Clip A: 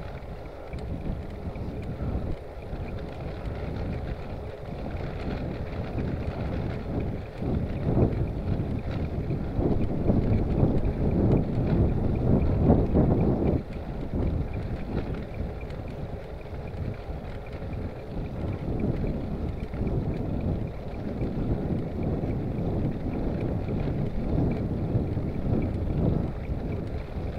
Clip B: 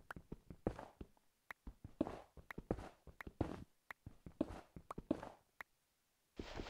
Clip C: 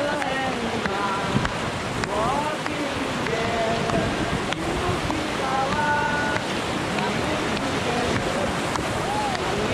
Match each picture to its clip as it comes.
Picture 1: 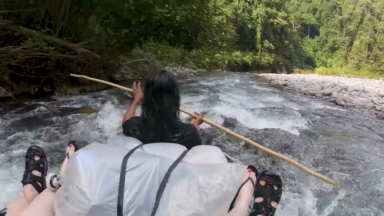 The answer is C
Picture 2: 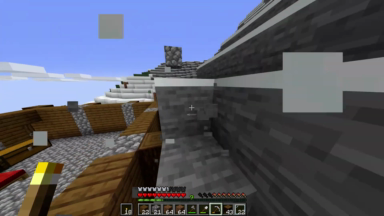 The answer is B